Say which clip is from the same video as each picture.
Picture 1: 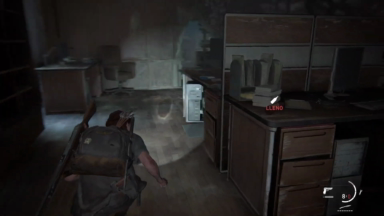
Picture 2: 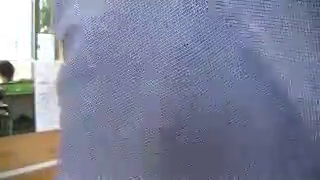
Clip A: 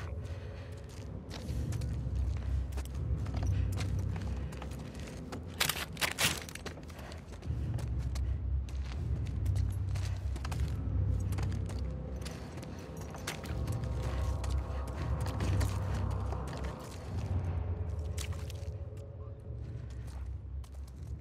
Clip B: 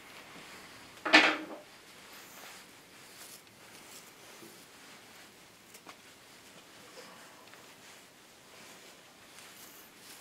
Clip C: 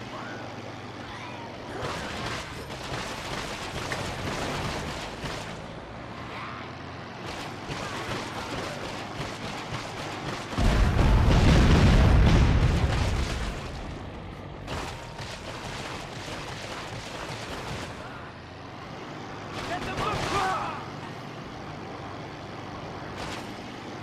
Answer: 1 A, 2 B